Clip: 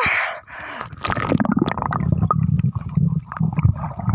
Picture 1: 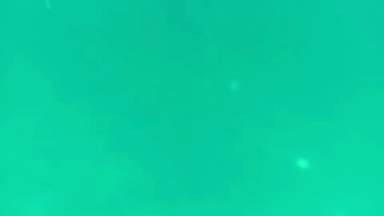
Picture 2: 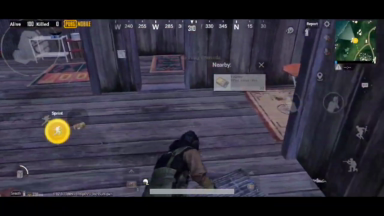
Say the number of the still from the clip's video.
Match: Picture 1